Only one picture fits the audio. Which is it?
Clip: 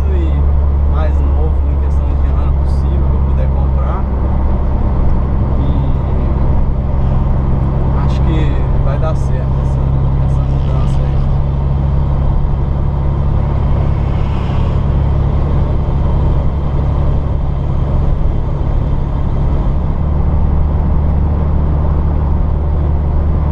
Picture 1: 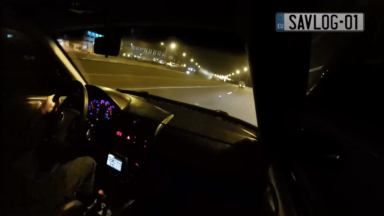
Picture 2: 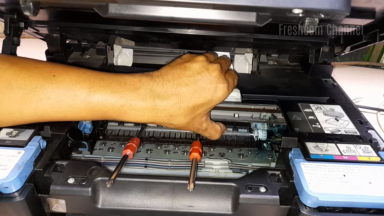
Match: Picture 1